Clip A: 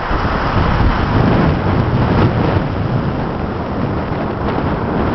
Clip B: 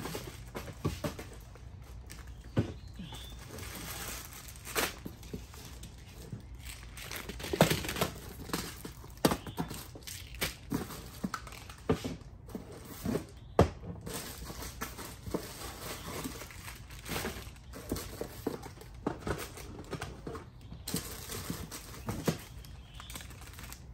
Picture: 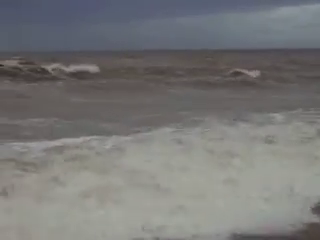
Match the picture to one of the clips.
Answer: A